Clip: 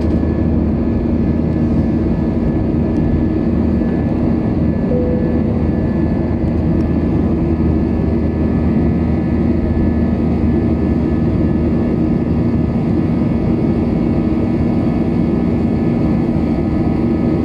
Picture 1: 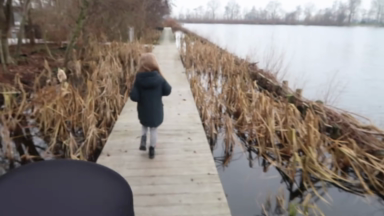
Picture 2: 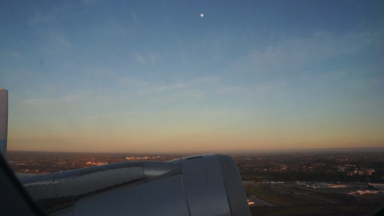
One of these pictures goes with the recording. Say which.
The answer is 2